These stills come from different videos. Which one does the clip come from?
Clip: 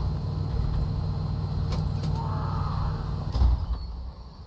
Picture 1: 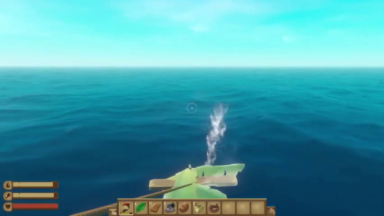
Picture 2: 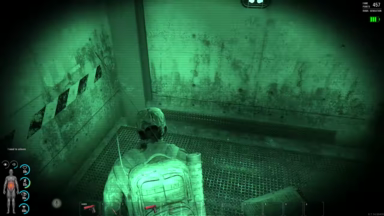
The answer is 2